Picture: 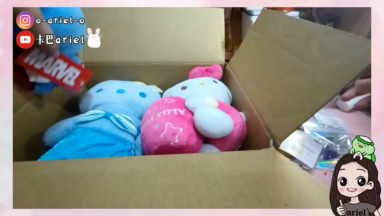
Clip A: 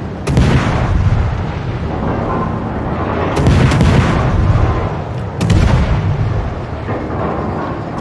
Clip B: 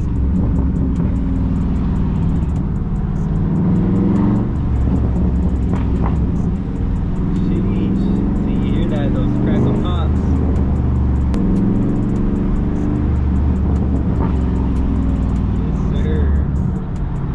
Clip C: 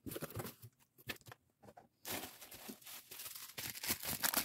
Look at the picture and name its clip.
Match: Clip C